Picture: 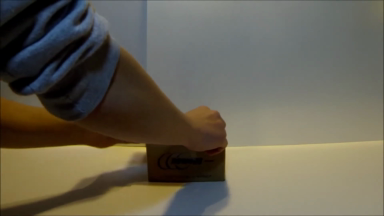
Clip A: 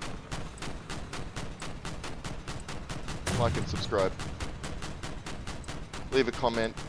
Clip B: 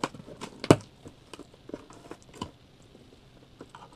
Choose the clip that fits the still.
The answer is B